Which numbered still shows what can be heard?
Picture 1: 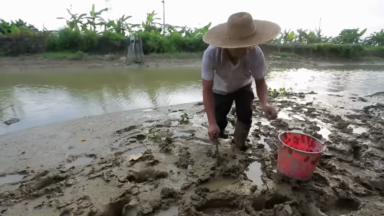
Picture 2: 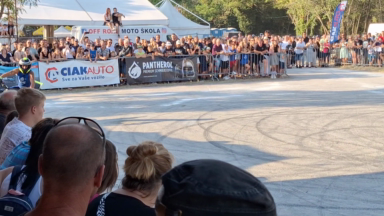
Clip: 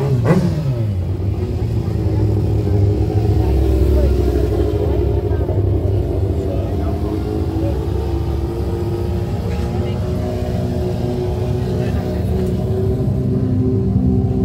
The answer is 2